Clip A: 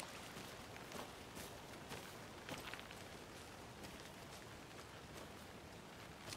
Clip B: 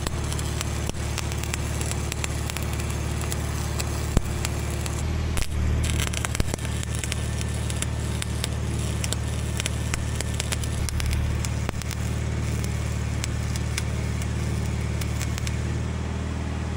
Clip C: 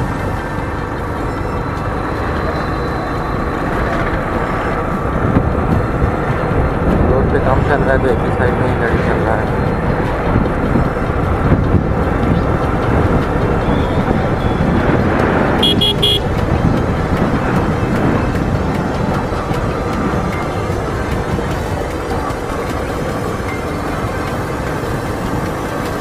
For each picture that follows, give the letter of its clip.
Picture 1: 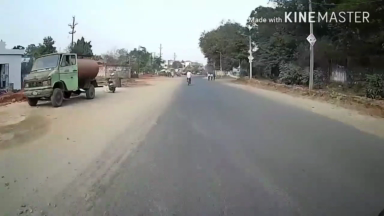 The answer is C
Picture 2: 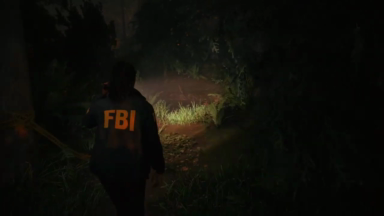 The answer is A